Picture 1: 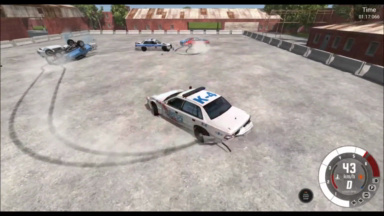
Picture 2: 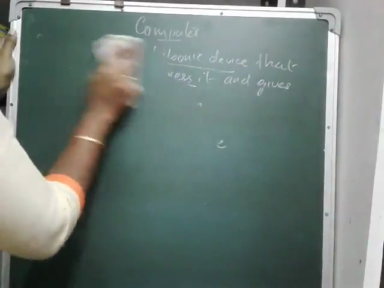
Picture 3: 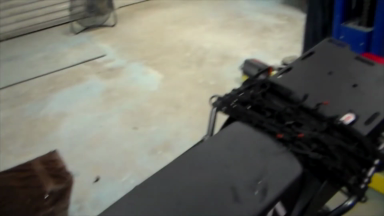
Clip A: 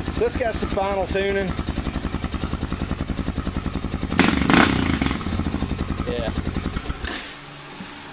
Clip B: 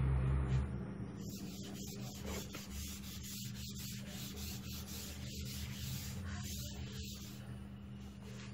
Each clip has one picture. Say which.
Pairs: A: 3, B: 2